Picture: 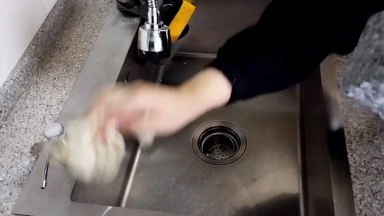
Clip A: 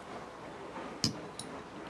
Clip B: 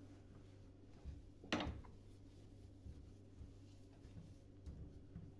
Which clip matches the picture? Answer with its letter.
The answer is B